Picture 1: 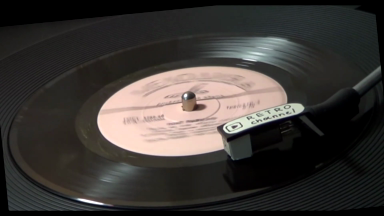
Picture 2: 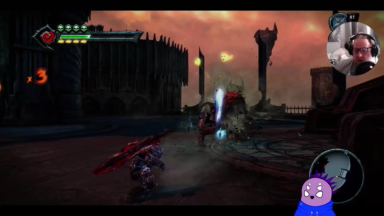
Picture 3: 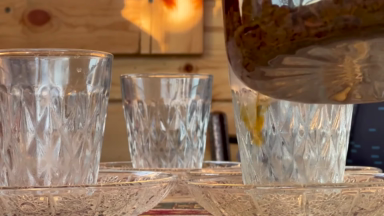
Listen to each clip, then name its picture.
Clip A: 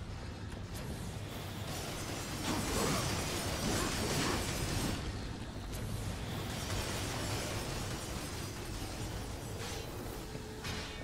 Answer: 2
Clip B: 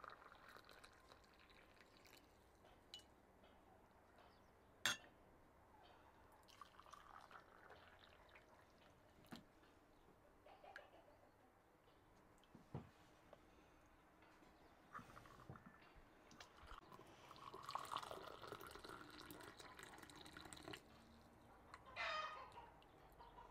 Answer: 3